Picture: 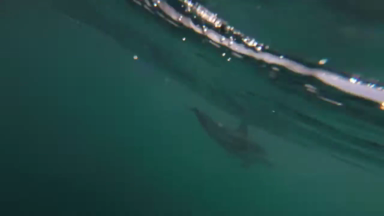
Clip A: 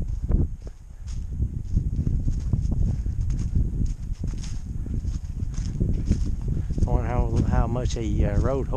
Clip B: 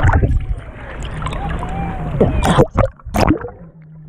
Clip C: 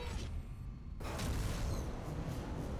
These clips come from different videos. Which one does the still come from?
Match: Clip B